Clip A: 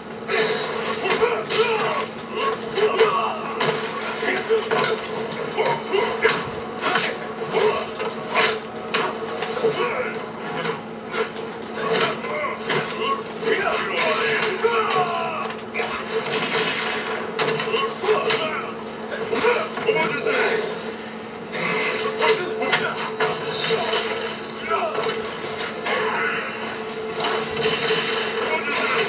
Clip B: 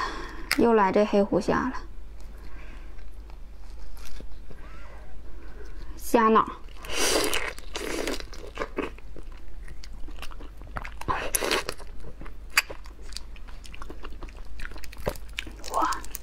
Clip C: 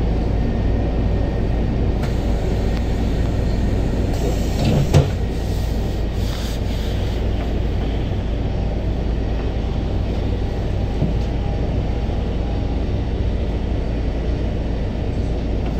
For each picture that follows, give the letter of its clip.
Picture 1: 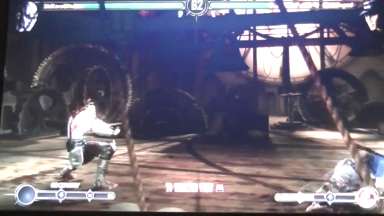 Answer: A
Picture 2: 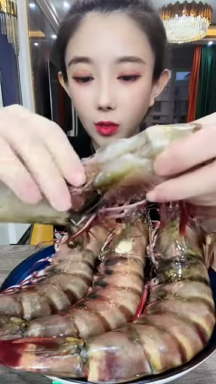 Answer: B